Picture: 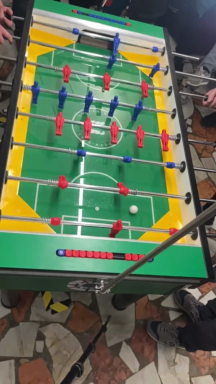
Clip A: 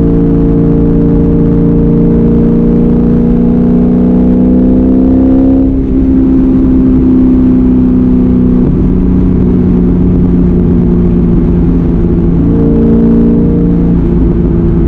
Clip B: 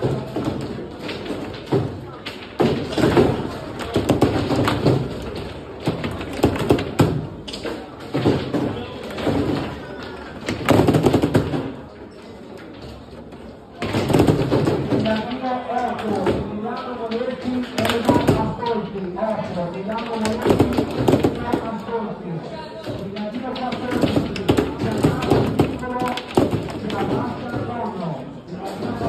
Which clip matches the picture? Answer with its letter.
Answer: B